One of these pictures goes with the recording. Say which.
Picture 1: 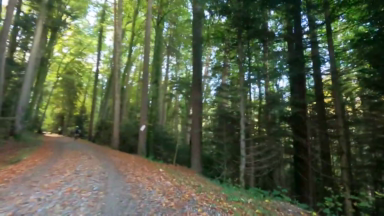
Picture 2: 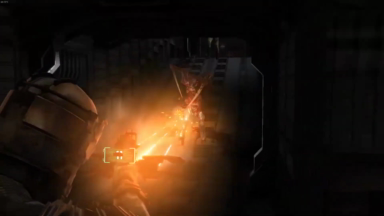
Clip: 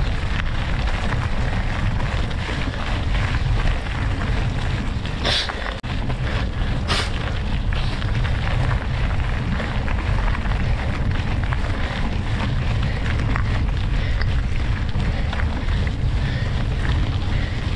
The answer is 1